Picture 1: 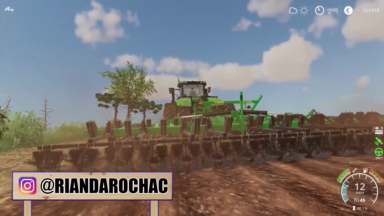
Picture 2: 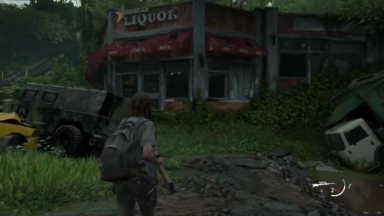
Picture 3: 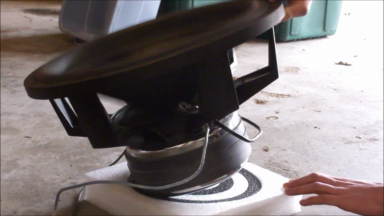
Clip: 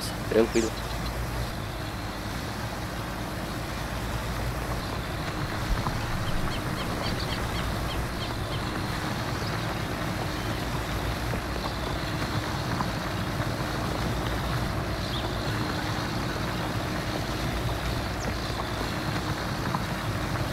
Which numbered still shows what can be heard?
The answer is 1